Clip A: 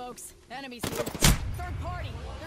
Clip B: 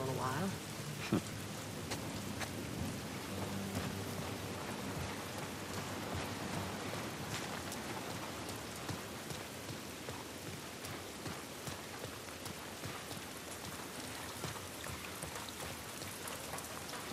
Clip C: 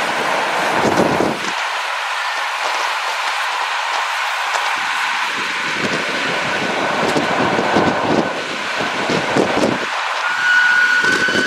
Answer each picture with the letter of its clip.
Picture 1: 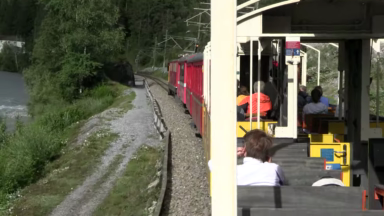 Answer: C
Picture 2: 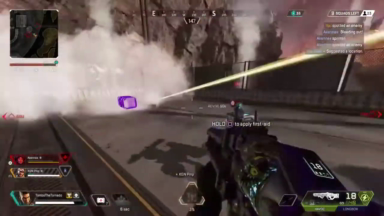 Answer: A